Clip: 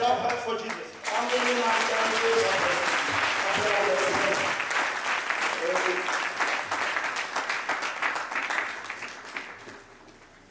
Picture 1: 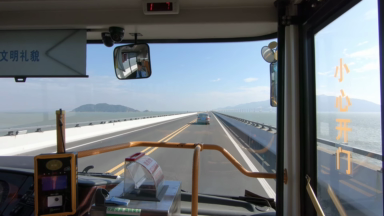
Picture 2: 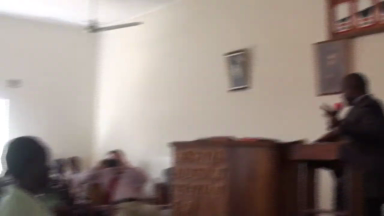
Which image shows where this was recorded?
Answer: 2